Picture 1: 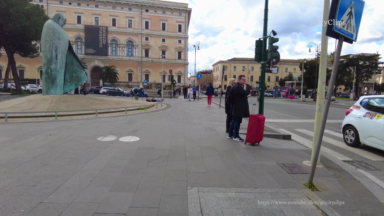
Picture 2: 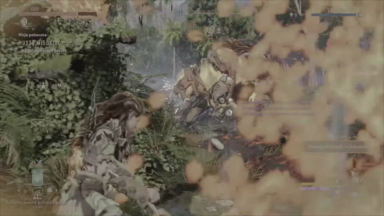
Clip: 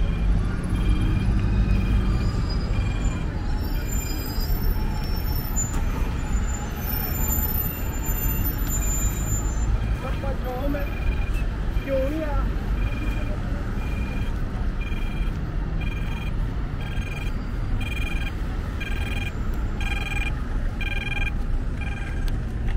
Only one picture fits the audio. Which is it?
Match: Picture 1